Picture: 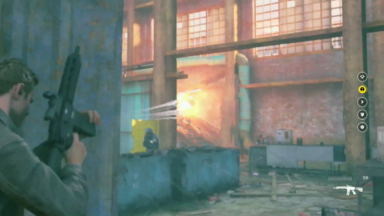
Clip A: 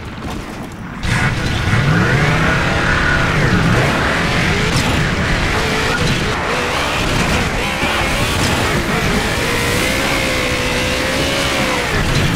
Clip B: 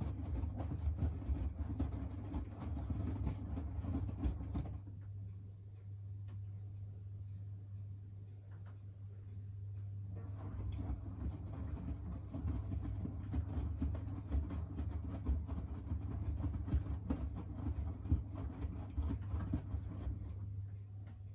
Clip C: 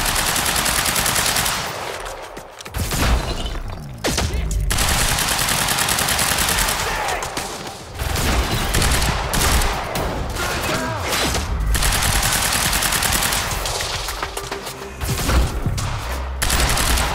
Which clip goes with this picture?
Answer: C